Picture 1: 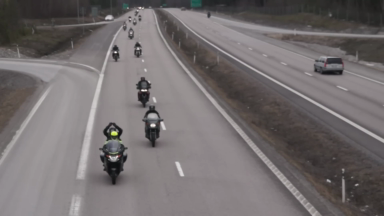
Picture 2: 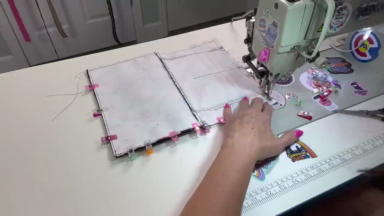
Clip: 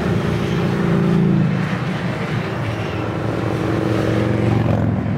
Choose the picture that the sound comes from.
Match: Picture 1